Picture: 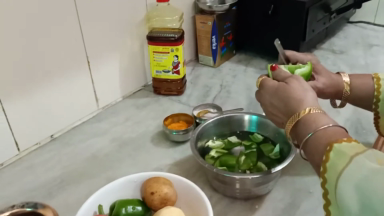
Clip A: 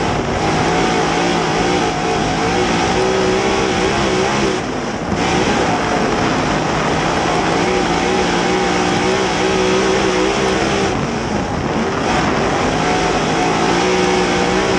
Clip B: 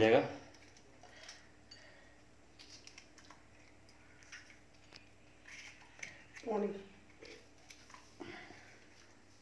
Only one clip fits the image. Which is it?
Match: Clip B